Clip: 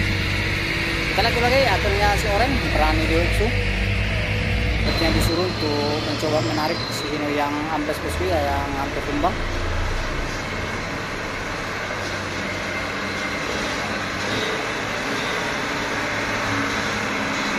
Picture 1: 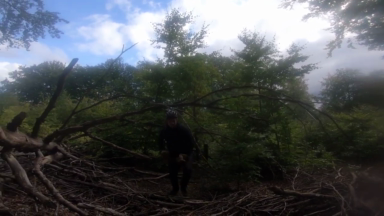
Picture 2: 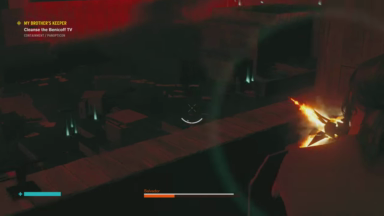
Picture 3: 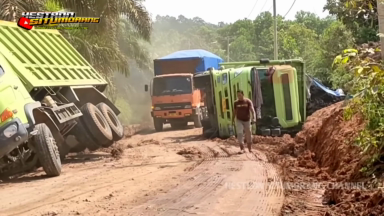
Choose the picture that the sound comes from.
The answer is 3